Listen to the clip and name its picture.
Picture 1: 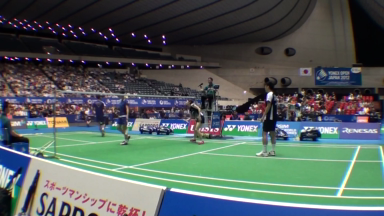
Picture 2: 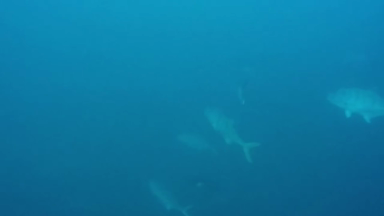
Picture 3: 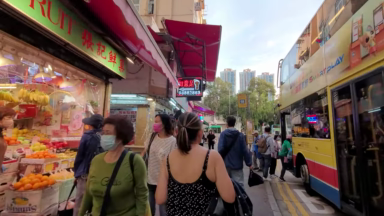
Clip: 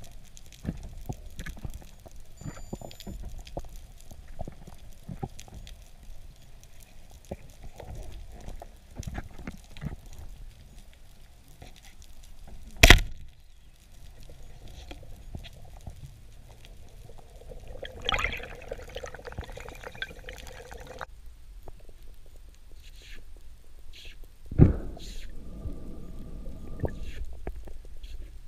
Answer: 2